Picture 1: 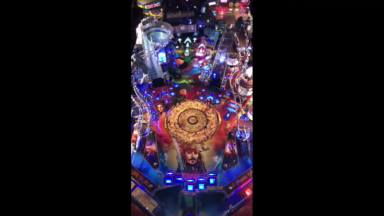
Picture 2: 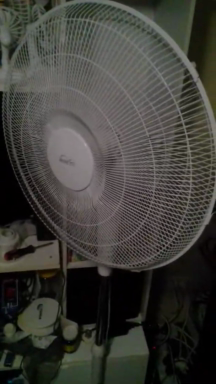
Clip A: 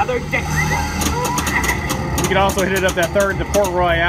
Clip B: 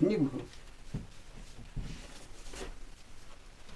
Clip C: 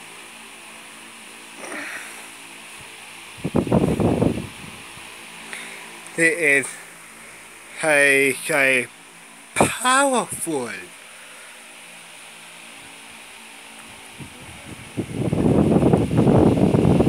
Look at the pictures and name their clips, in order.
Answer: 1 A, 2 C